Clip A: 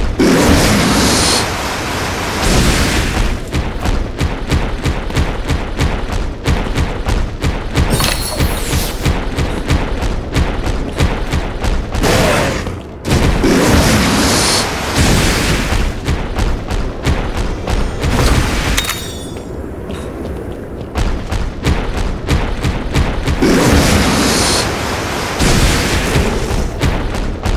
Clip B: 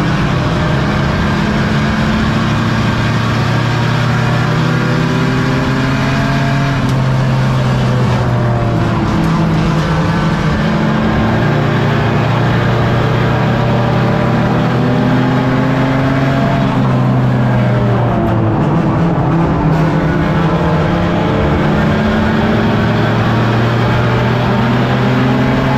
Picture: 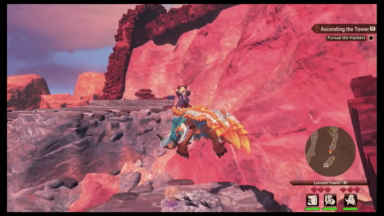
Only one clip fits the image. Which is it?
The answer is A